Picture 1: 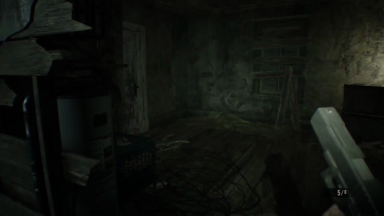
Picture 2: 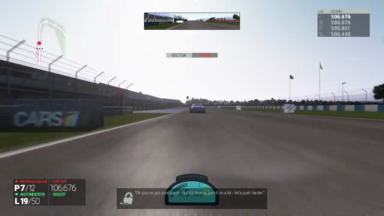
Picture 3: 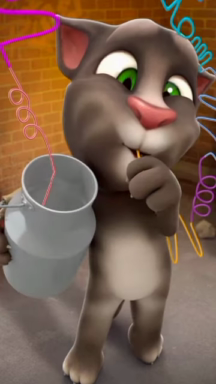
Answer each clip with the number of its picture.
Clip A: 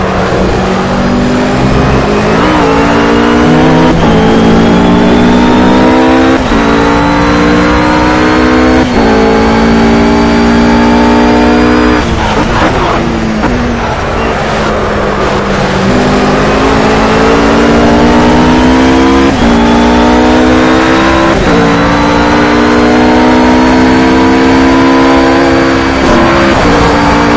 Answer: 2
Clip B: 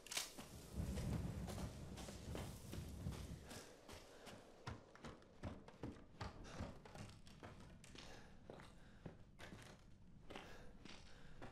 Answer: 1